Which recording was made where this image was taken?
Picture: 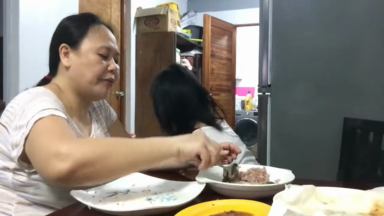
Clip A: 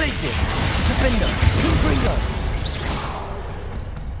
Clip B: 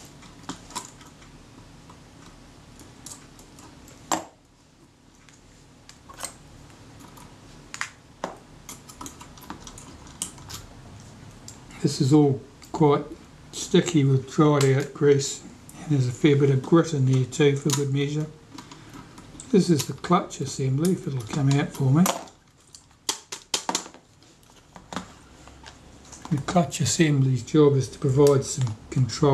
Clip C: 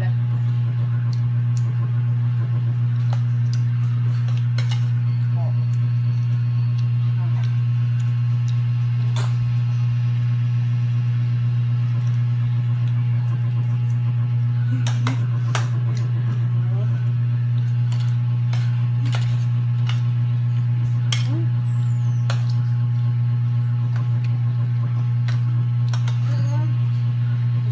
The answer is C